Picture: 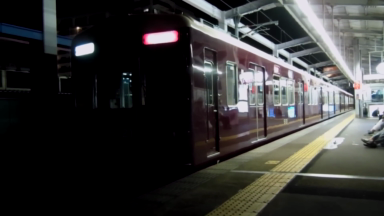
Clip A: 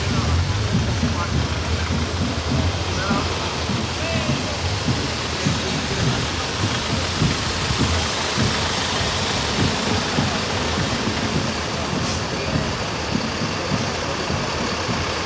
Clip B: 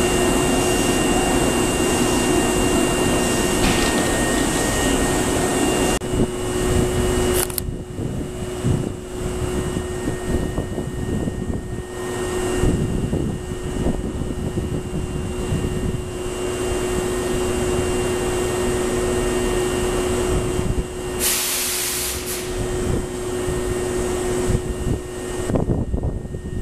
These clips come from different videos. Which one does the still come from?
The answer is B